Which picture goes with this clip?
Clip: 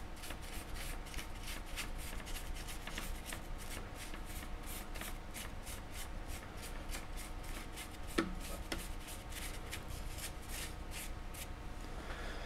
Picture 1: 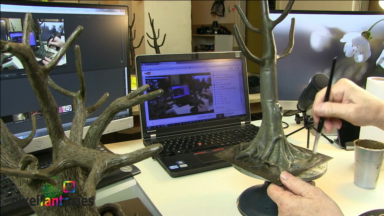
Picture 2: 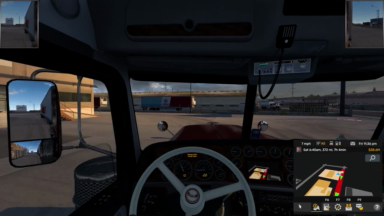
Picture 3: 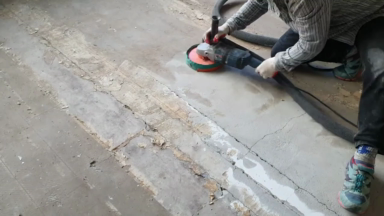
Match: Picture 1